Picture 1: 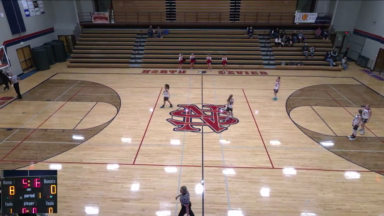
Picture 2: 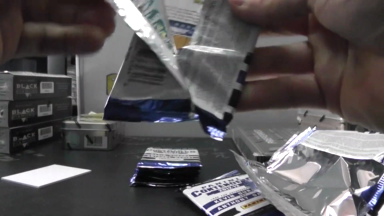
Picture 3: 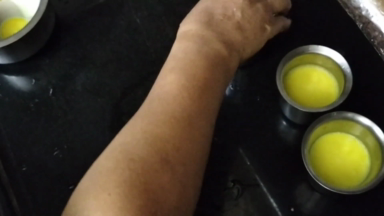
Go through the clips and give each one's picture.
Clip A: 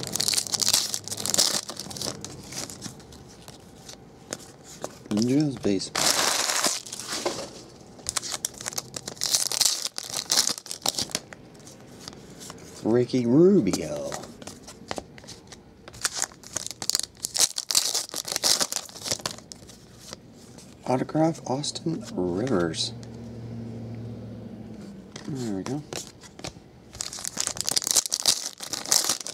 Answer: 2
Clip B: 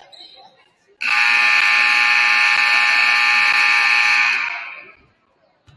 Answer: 1